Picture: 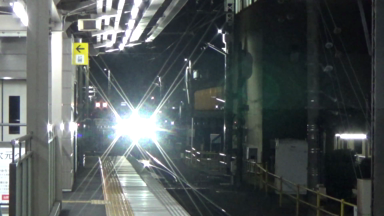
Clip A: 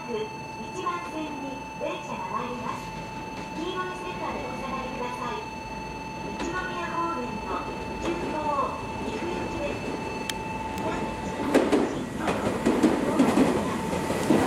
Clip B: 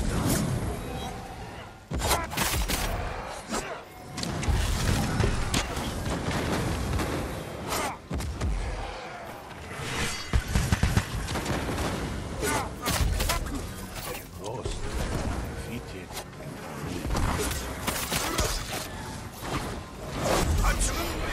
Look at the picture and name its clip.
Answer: A